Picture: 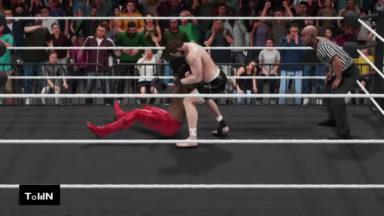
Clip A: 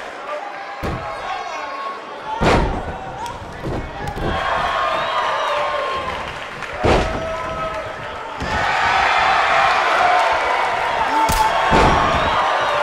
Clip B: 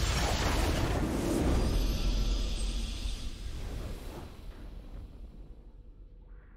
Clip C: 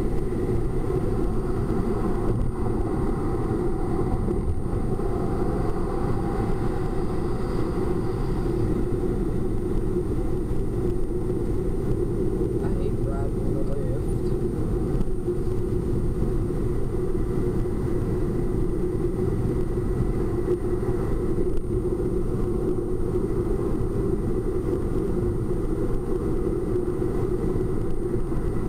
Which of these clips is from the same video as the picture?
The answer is A